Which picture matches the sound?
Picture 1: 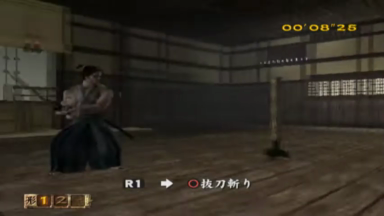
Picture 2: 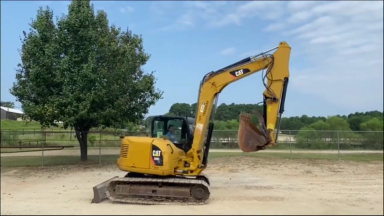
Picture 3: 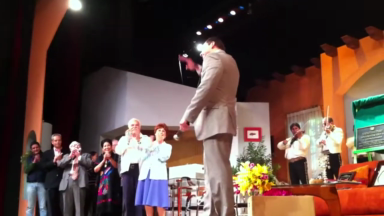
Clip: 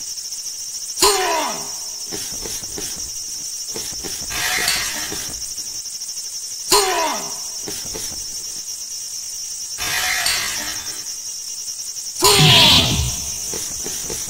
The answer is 1